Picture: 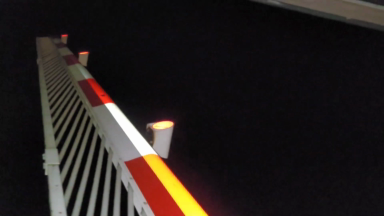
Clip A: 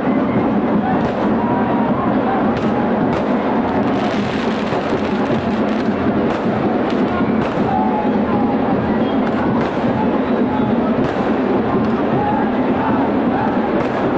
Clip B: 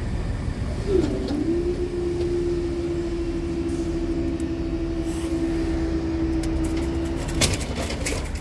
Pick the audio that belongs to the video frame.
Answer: B